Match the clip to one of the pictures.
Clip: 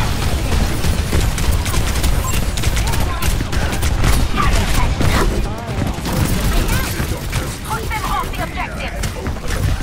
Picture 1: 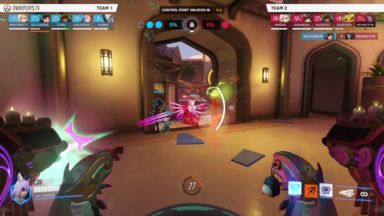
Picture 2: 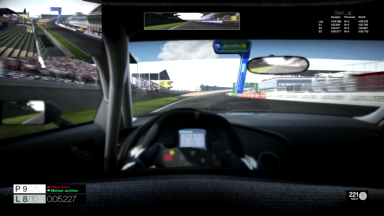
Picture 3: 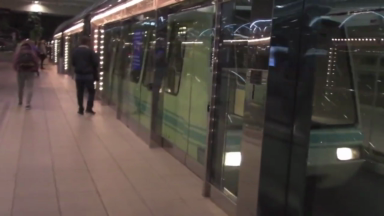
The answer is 1